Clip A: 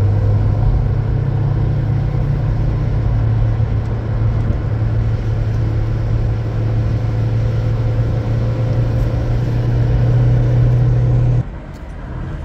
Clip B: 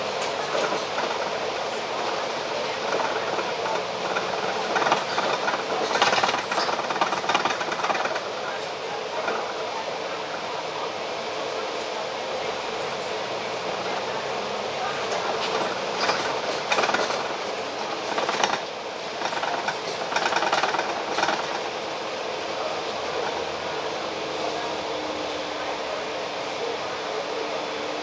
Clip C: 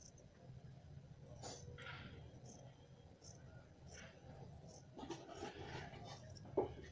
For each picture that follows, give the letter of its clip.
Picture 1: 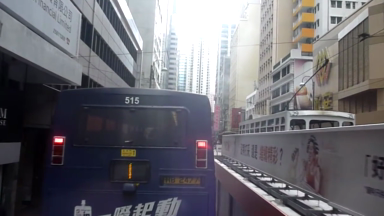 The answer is B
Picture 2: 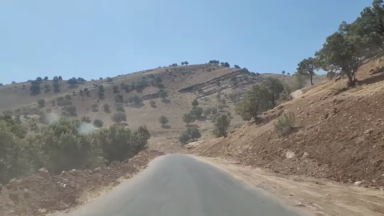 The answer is A